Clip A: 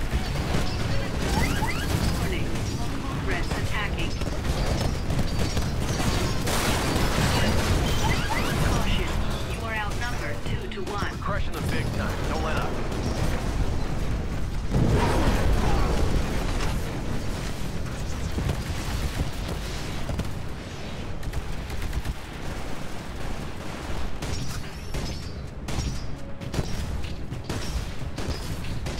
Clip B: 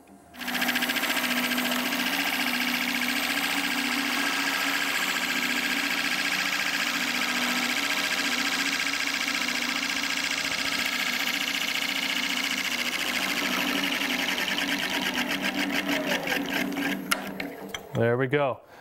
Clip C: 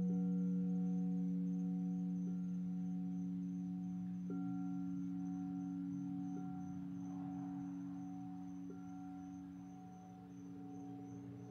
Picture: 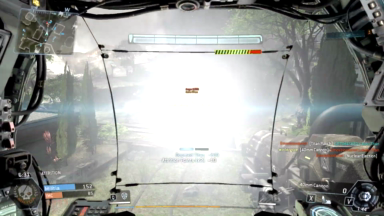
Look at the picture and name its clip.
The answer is A